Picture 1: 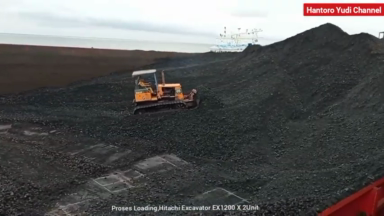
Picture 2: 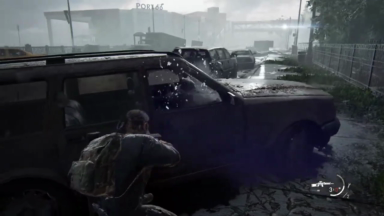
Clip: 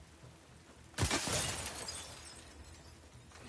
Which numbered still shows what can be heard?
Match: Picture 2